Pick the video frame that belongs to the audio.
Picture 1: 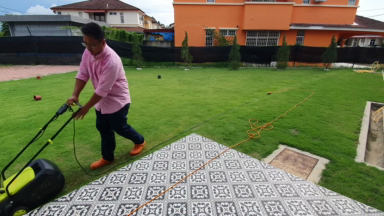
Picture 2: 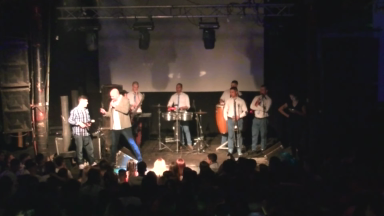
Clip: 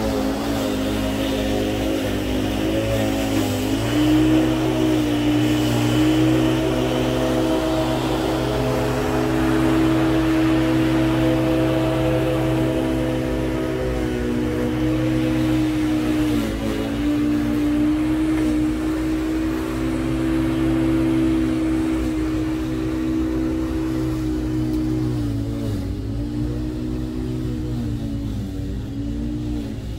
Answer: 1